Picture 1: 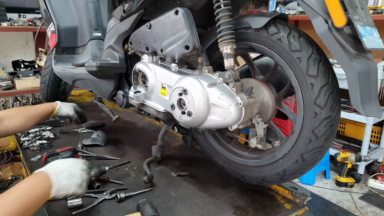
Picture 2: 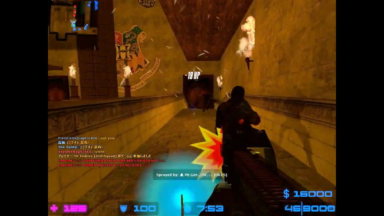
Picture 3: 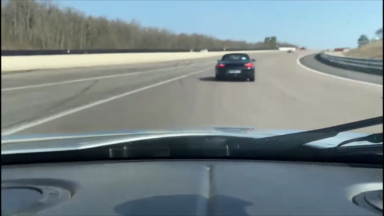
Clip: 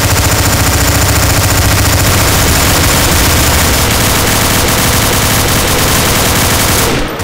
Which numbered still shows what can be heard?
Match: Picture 2